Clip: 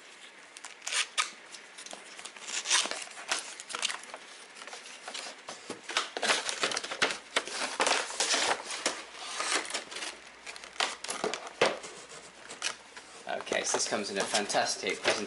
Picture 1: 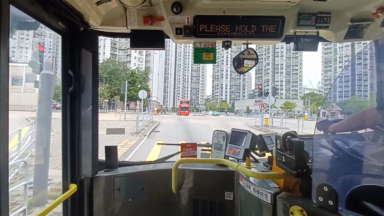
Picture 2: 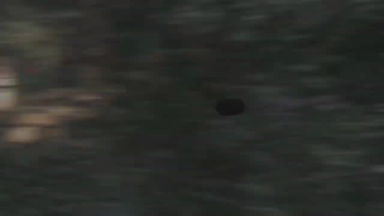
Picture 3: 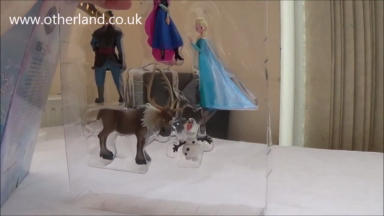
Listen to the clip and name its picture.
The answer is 3